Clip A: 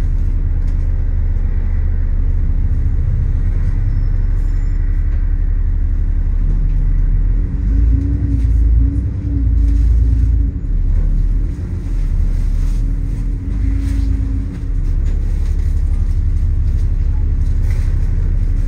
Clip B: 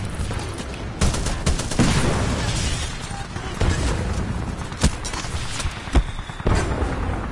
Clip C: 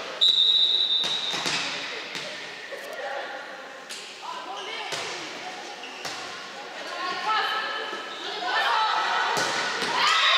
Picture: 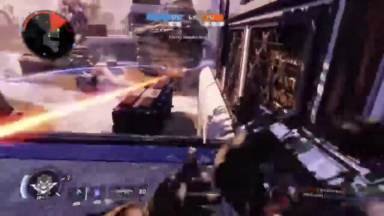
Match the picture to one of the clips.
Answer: B